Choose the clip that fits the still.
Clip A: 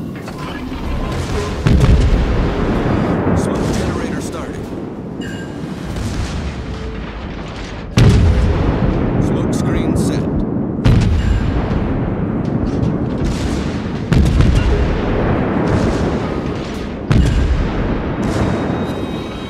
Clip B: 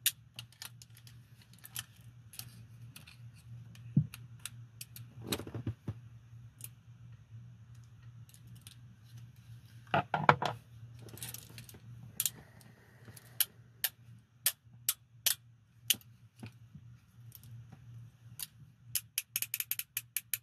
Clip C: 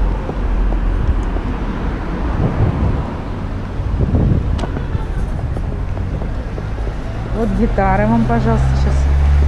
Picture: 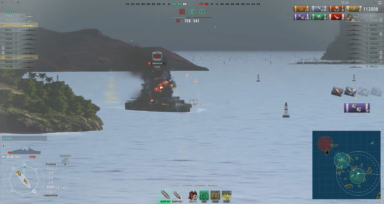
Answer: A